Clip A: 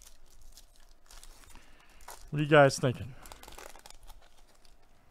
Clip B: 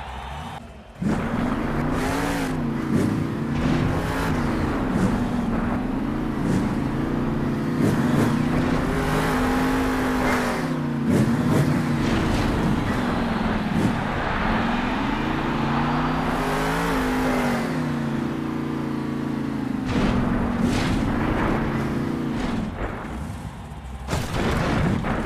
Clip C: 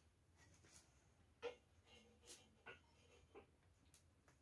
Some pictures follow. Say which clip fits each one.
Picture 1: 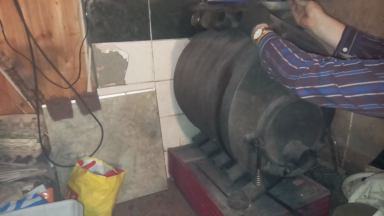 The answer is C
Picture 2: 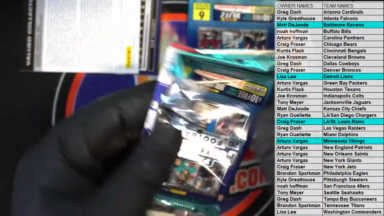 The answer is A